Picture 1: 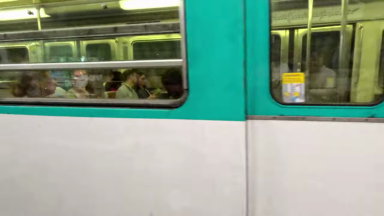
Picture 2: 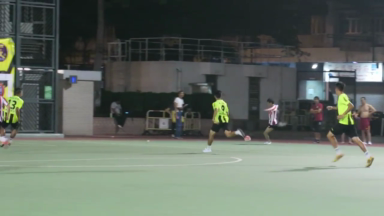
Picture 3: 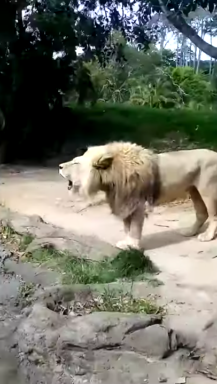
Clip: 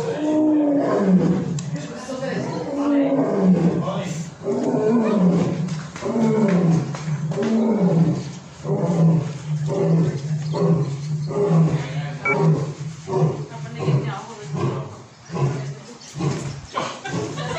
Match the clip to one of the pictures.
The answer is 3